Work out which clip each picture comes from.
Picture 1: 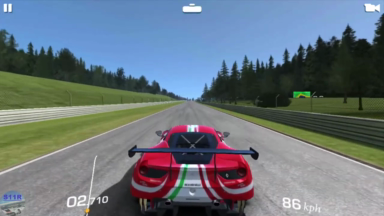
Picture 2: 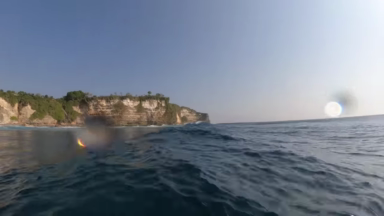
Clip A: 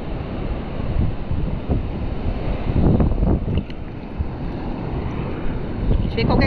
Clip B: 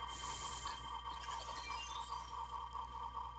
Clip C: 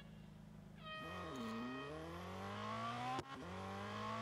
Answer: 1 C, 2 A